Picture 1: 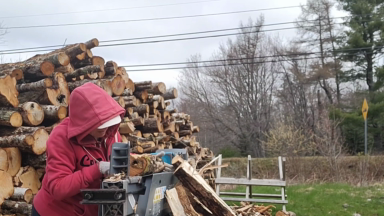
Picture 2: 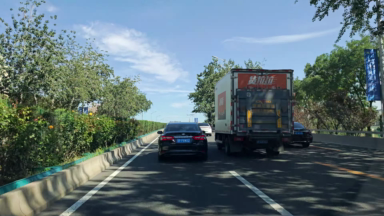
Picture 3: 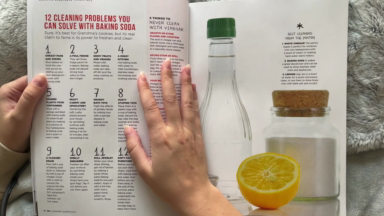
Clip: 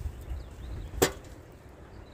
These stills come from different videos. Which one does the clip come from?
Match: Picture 1